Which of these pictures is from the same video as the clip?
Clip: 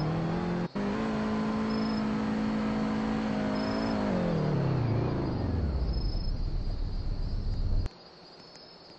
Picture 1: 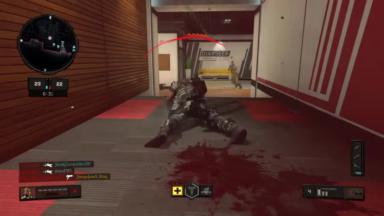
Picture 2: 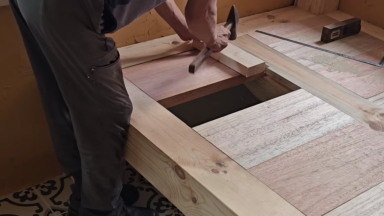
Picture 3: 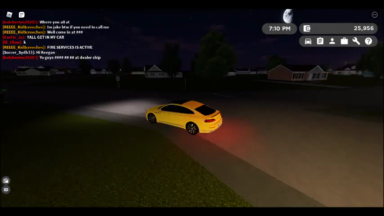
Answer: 3